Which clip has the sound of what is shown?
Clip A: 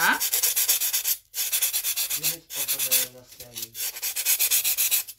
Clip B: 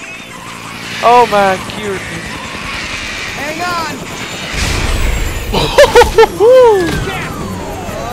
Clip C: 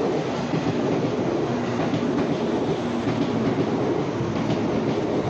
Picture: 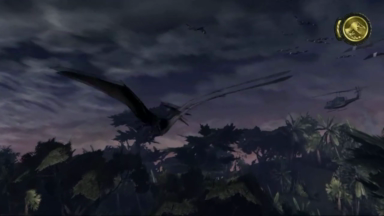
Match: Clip B